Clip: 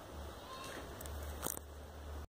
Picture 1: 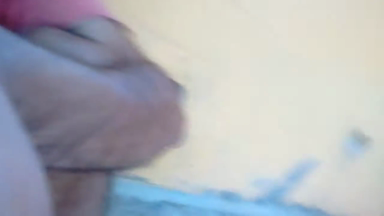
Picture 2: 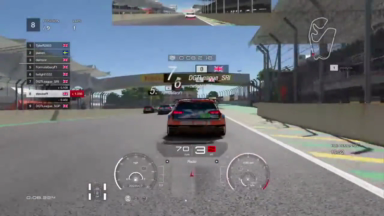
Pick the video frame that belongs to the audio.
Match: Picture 1